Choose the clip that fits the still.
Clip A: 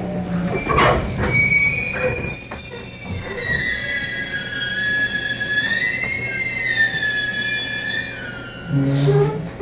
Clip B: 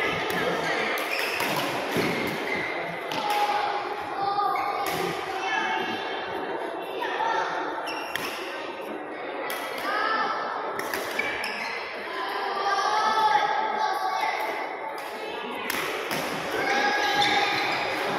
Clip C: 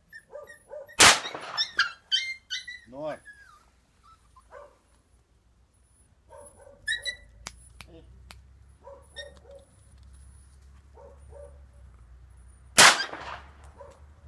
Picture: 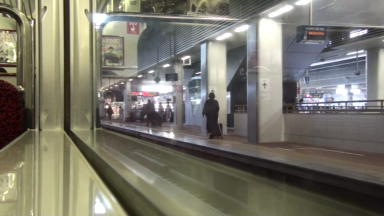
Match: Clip A